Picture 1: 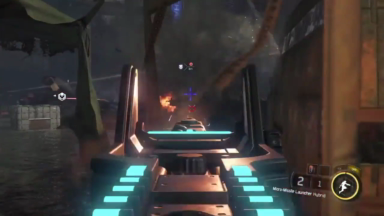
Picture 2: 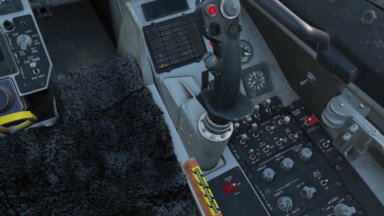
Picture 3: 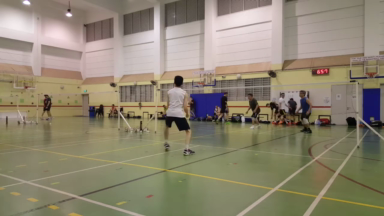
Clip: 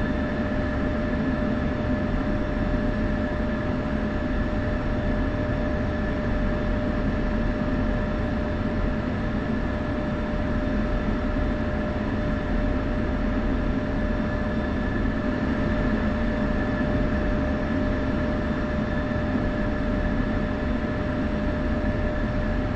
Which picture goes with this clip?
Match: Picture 2